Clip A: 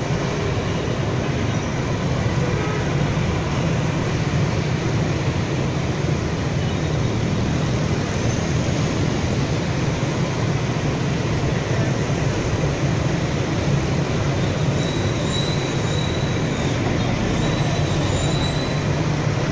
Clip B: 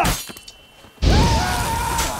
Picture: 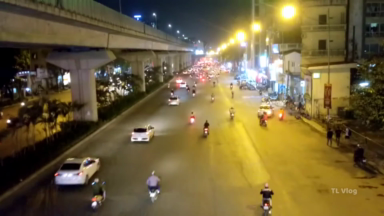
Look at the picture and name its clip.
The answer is A